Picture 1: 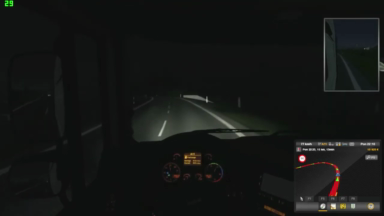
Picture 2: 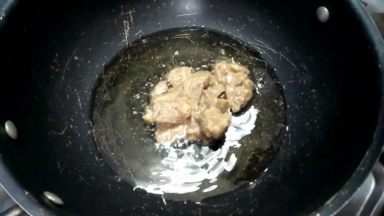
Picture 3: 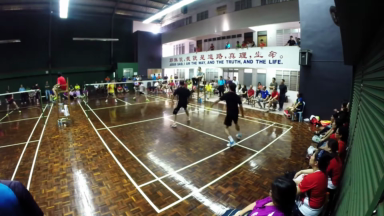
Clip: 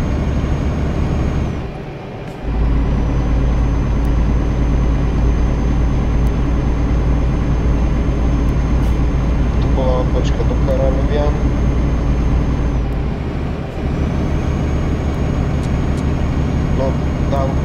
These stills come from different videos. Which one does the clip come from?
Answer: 1